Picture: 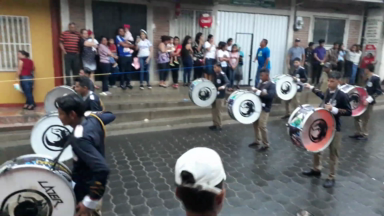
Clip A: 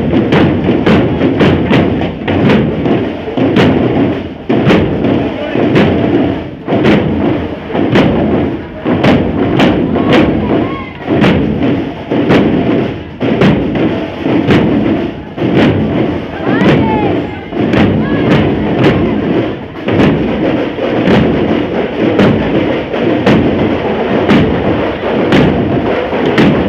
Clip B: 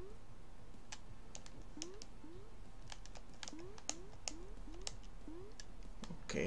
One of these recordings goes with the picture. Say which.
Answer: A